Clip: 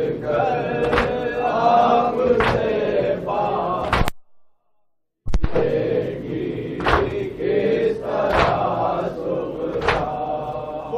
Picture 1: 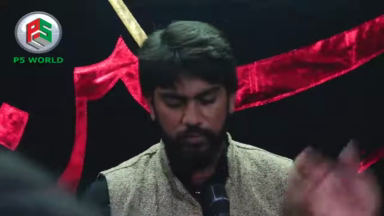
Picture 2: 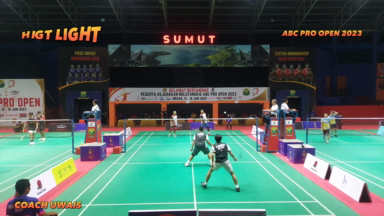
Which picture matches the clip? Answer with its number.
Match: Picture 1